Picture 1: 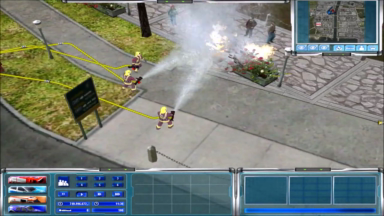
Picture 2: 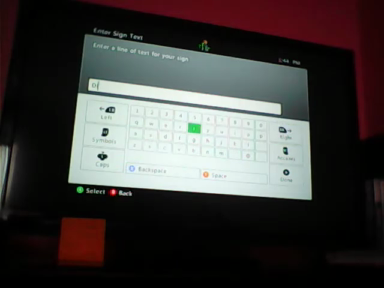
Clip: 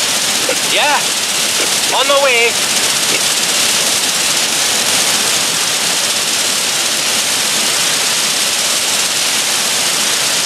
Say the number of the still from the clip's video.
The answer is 1